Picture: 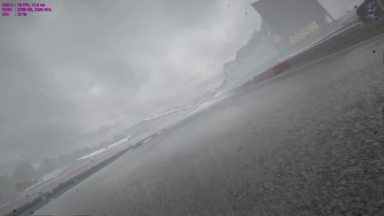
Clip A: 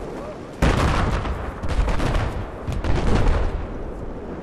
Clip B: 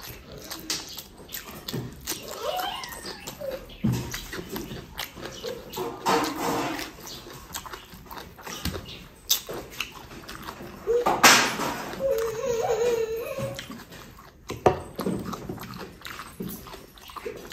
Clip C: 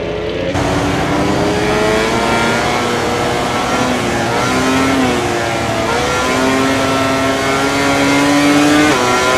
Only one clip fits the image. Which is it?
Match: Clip C